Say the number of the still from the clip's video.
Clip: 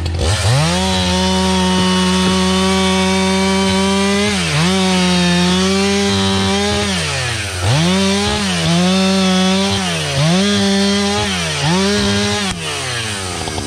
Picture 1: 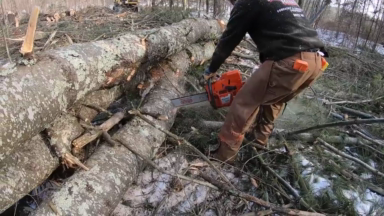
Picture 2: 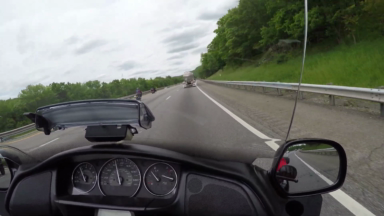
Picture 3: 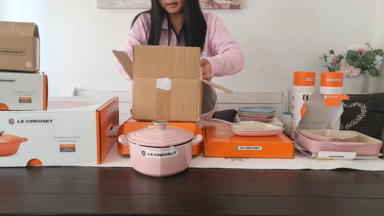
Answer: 1